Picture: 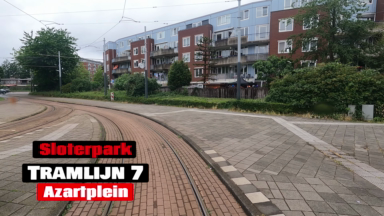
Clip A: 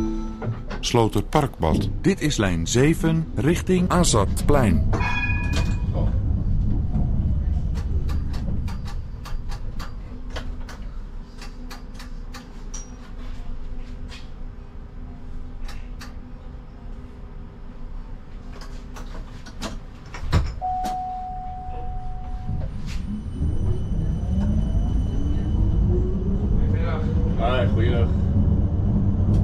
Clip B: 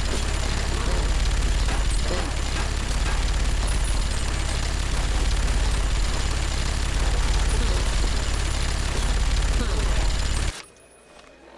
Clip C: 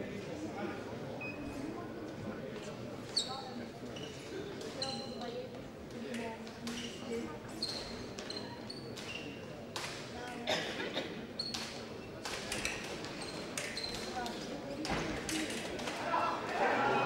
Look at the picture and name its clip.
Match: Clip A